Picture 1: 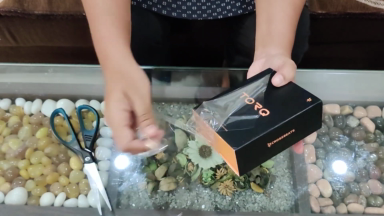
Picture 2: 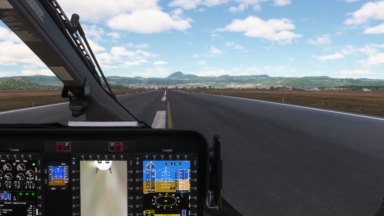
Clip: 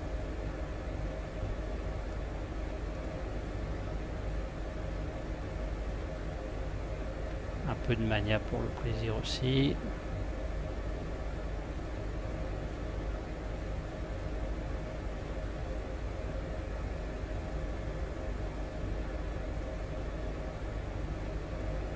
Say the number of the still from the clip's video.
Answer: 2